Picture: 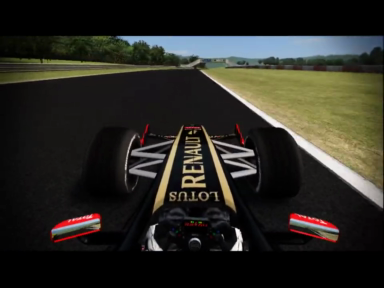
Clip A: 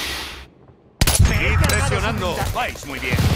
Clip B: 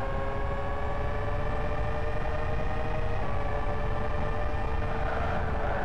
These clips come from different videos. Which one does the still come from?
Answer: B